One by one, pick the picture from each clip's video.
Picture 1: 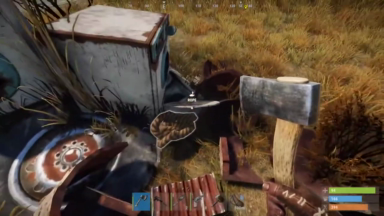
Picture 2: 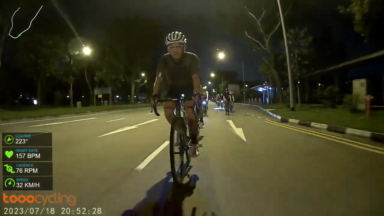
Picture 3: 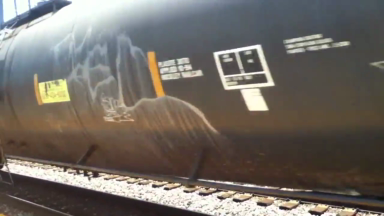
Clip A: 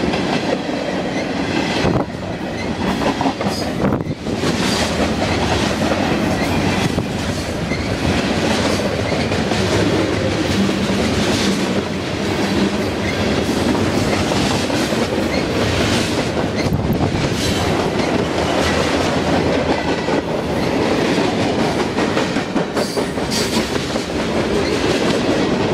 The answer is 3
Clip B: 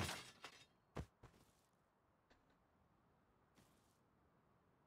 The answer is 1